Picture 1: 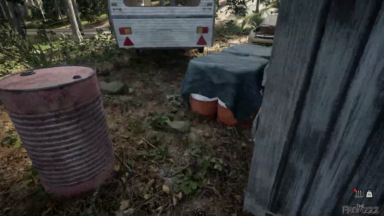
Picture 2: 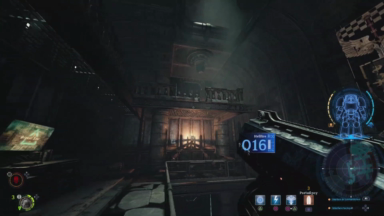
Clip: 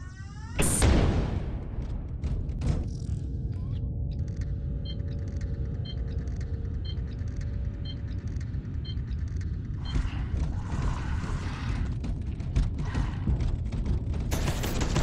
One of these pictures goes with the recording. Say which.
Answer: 2